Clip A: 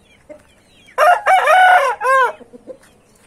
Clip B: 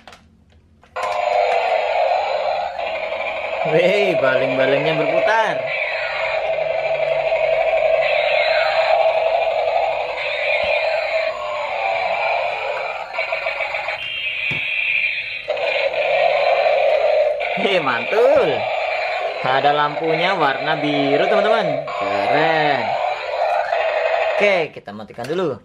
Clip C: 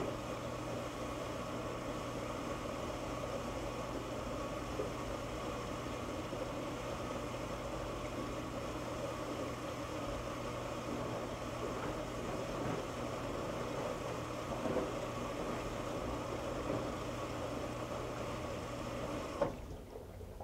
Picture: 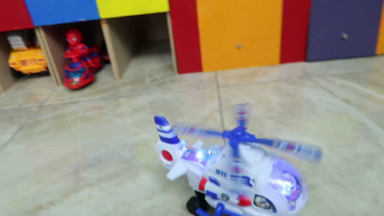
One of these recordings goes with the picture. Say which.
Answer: B